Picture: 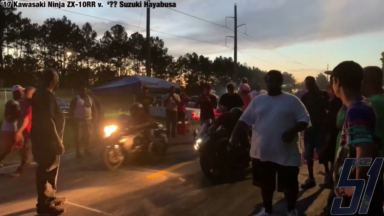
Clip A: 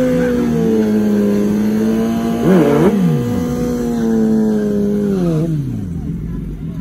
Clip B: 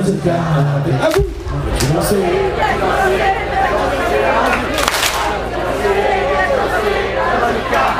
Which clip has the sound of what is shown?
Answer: A